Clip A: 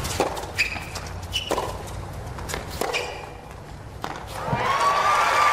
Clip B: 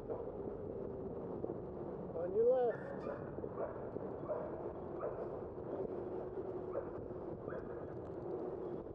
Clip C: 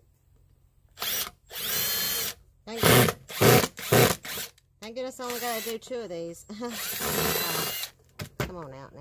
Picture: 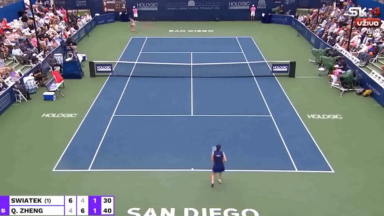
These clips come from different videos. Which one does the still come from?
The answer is A